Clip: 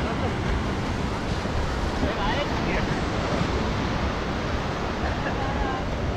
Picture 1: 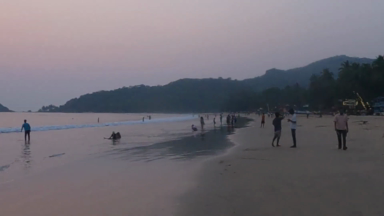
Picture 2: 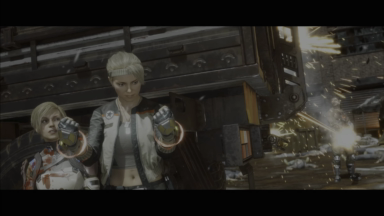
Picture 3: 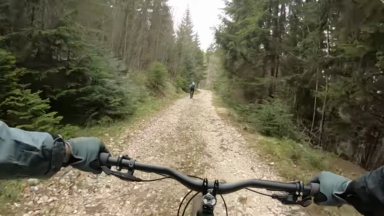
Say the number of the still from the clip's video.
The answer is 1